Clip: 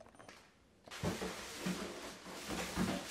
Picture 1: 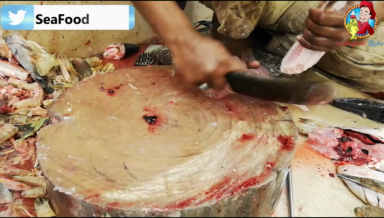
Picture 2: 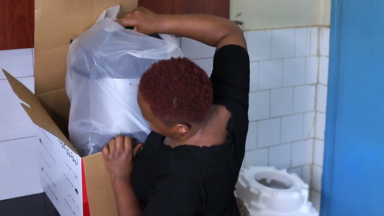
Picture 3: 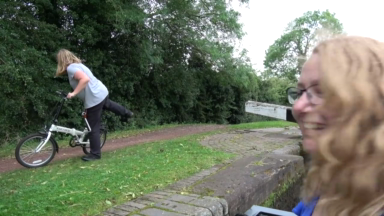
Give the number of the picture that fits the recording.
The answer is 2